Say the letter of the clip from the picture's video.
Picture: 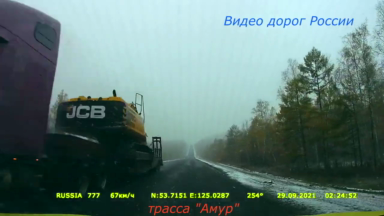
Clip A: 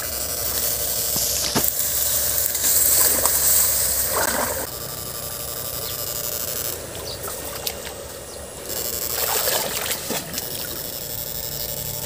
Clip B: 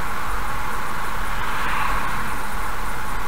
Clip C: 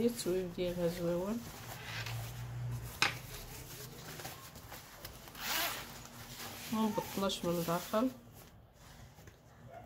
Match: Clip B